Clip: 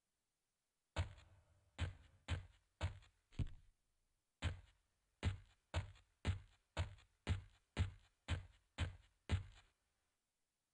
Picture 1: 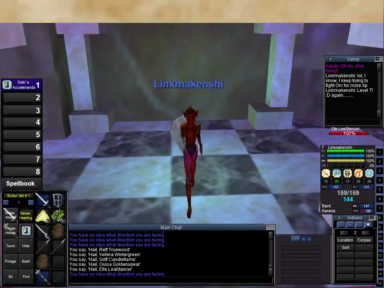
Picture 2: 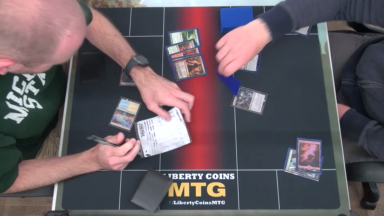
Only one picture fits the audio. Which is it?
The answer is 1